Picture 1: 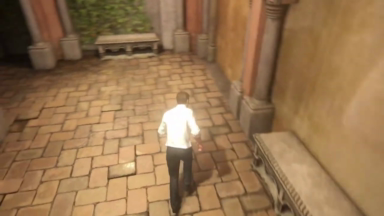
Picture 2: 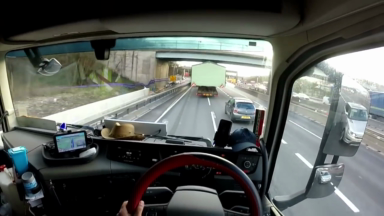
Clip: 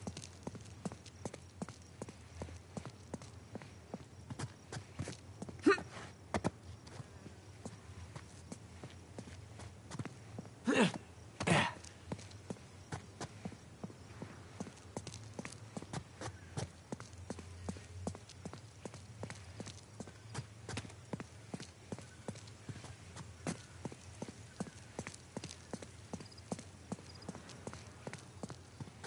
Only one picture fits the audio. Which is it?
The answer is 1